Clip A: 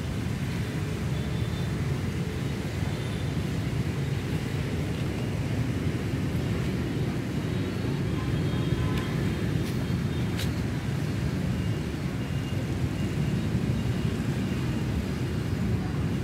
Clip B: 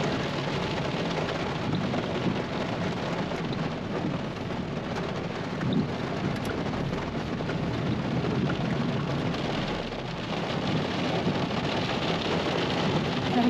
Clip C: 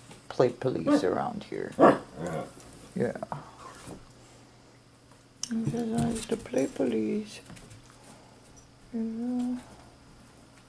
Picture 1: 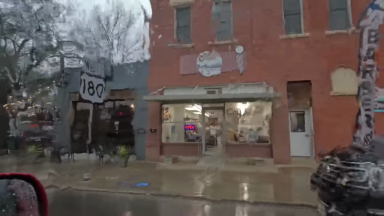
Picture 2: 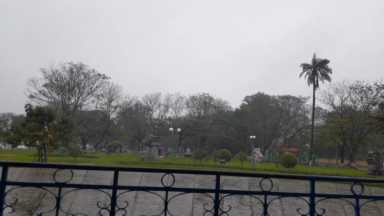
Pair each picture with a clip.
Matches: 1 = B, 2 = A